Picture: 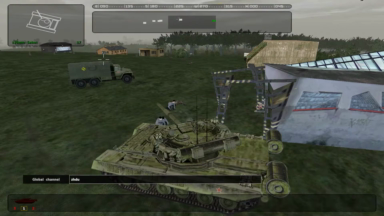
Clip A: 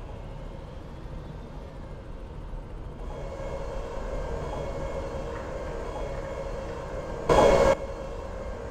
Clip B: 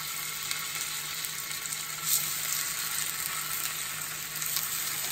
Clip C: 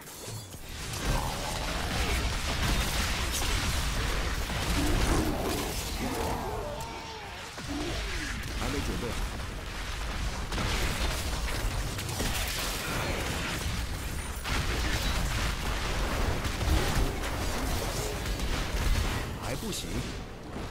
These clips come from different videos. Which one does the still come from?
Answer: A